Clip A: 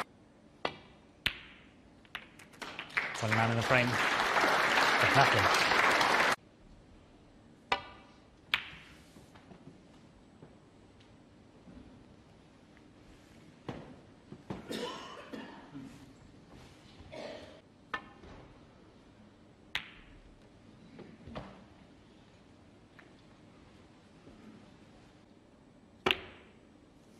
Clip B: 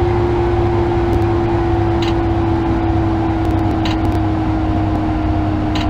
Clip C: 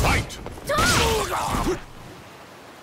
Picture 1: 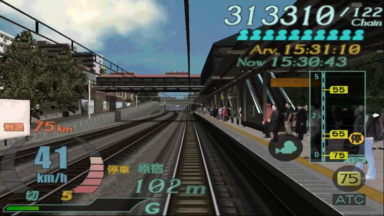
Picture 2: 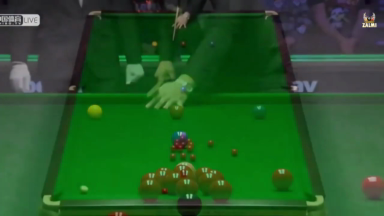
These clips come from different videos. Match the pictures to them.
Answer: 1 B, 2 A